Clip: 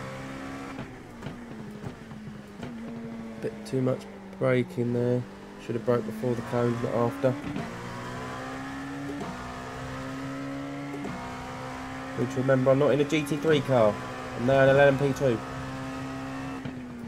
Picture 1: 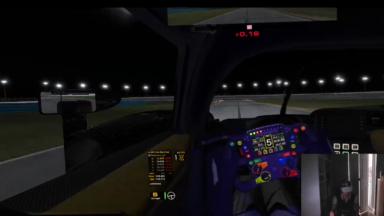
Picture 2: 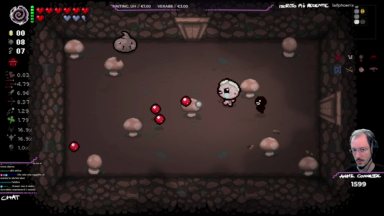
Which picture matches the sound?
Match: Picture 1